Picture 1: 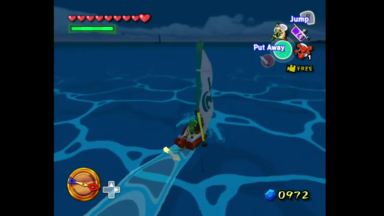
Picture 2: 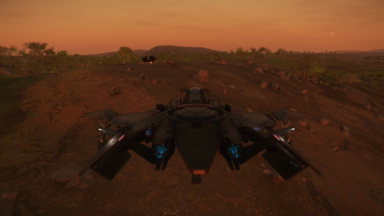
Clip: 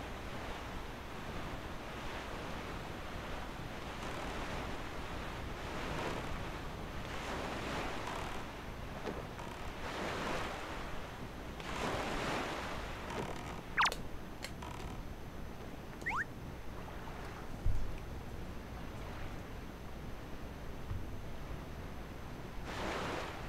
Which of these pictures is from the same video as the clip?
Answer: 1